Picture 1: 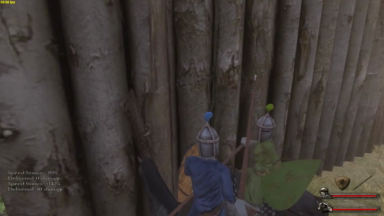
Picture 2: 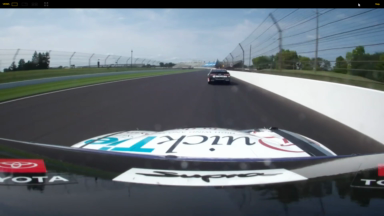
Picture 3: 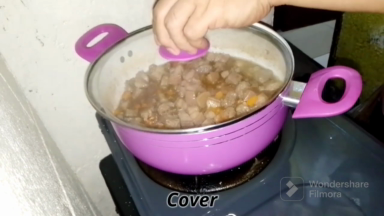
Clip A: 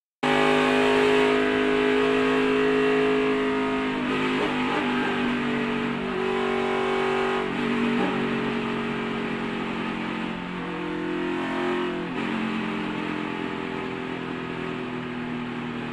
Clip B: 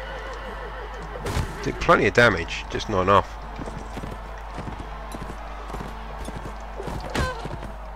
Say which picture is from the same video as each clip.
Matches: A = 2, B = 1